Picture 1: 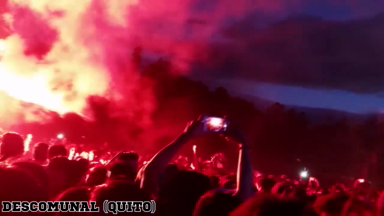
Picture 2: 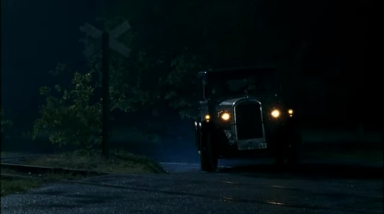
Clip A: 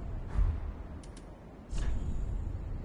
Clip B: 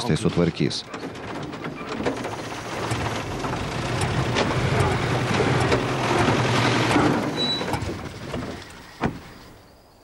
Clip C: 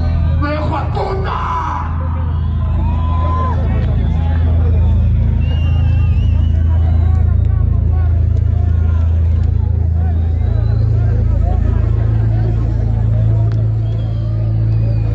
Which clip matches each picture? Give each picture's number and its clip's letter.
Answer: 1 C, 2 B